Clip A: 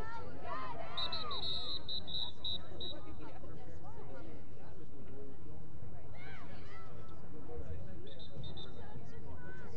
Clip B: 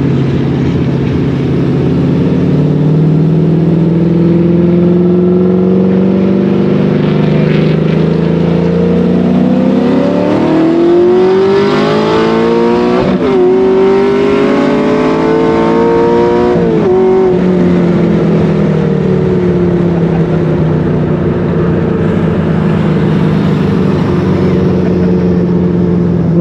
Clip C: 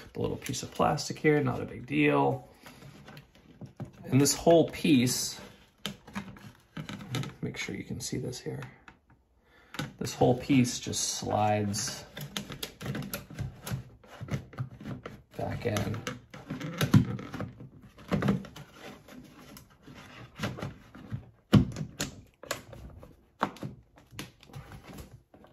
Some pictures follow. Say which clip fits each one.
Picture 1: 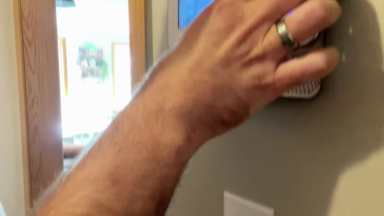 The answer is C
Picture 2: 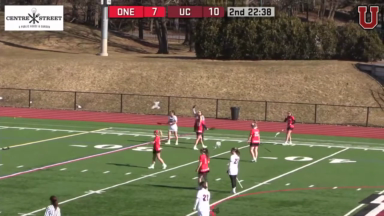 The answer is A